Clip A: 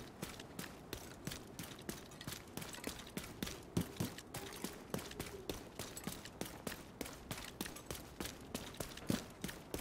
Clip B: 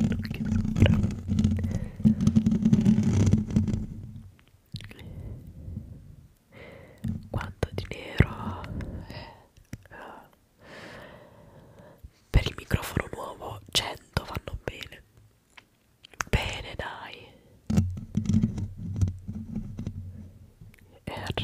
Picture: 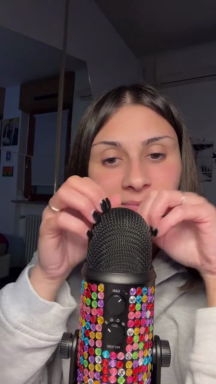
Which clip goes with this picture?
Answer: B